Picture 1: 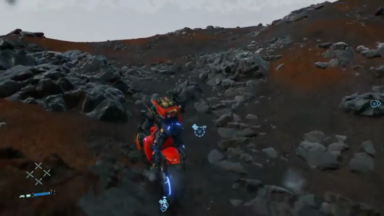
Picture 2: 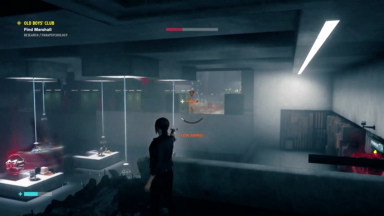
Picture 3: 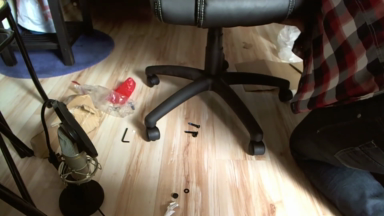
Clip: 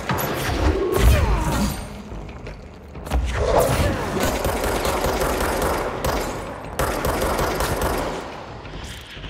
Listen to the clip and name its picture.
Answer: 2